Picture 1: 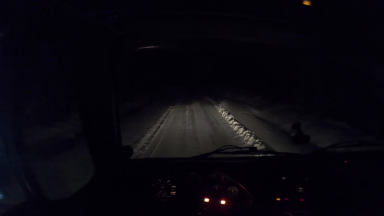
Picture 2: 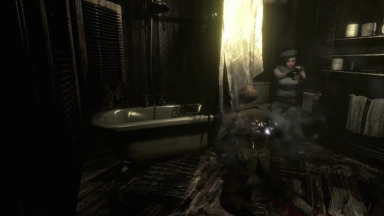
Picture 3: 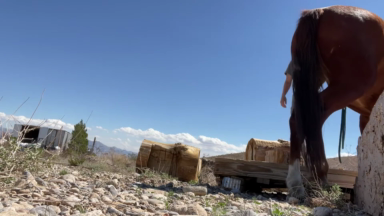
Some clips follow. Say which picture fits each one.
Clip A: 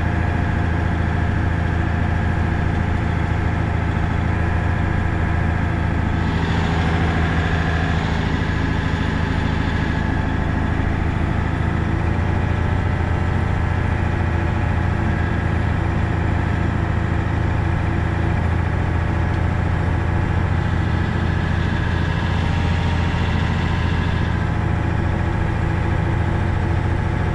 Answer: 1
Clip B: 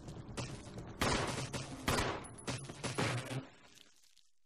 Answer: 2